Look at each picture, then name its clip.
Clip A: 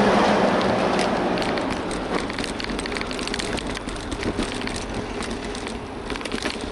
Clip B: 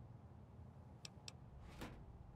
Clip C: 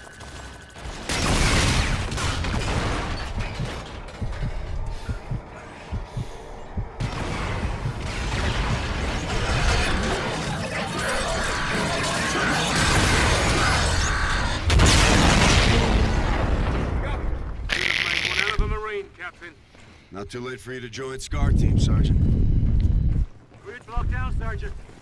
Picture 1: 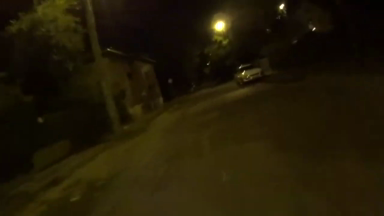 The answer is A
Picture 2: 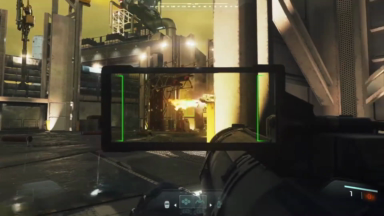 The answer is C